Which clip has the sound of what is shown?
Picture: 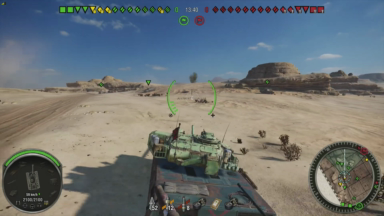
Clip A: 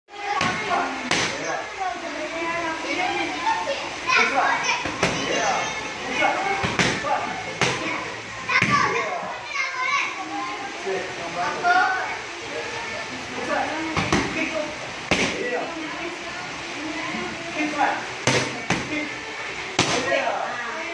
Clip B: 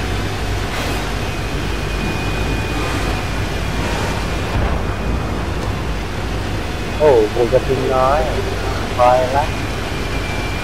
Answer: B